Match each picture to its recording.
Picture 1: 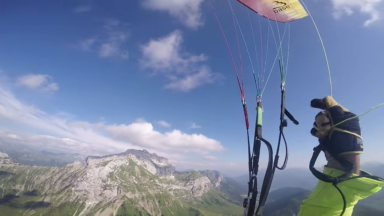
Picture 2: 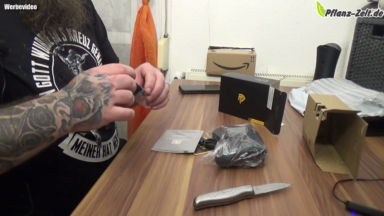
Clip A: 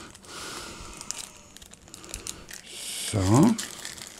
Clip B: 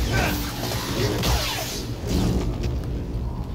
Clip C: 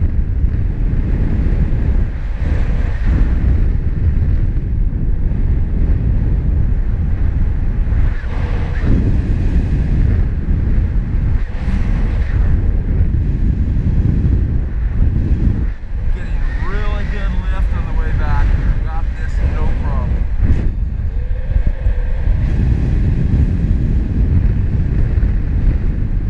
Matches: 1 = C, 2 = A